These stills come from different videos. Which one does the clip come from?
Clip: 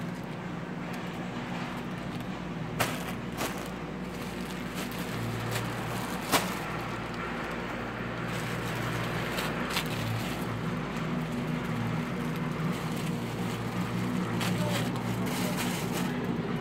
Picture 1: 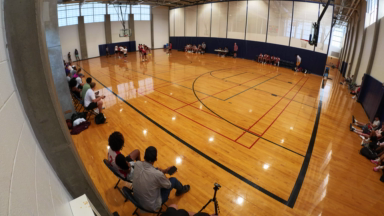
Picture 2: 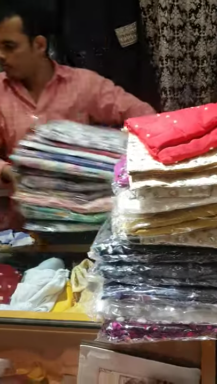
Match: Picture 2